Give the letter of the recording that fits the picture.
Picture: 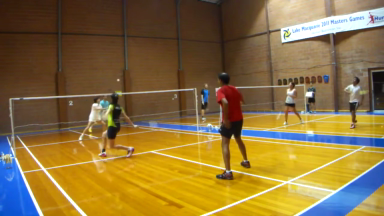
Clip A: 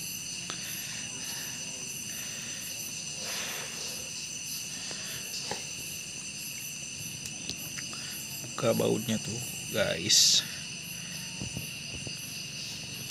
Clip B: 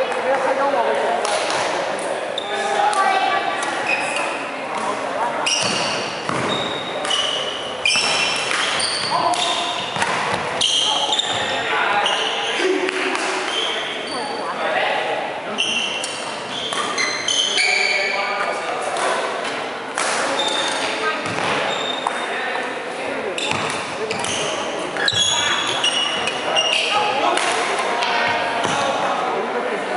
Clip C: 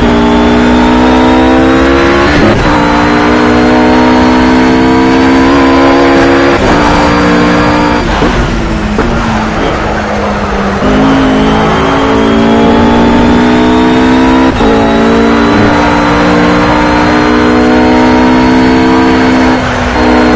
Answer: B